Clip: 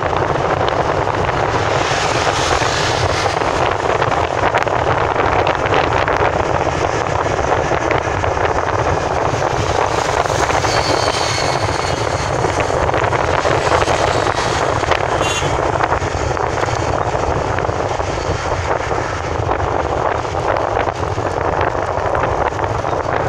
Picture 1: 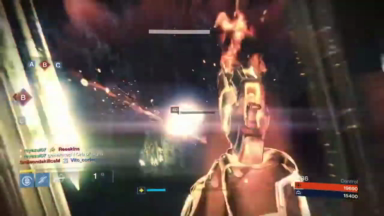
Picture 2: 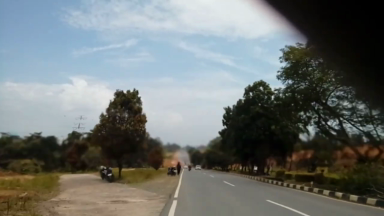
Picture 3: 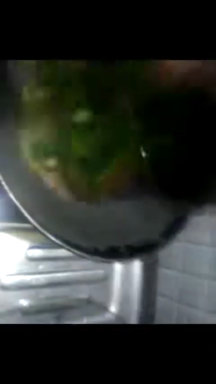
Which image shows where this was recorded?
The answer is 2